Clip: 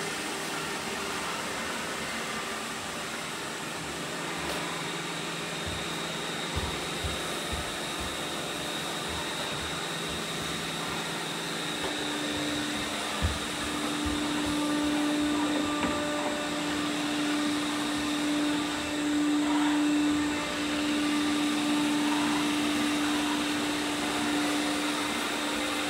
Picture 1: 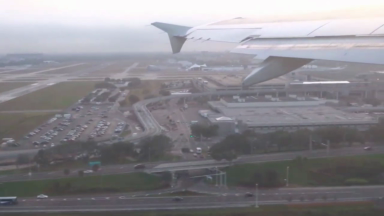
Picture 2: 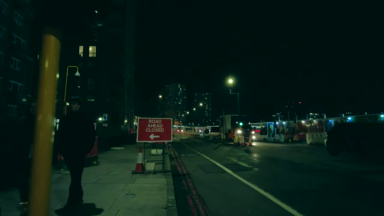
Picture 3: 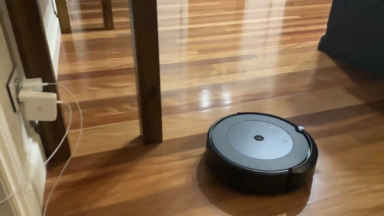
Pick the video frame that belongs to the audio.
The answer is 3